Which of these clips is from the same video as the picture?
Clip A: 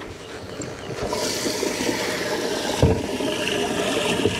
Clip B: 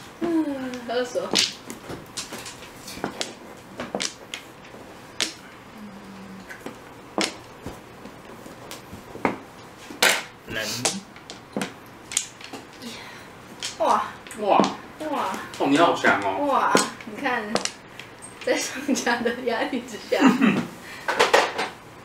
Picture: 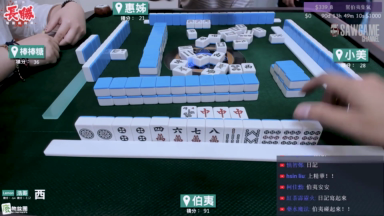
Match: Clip B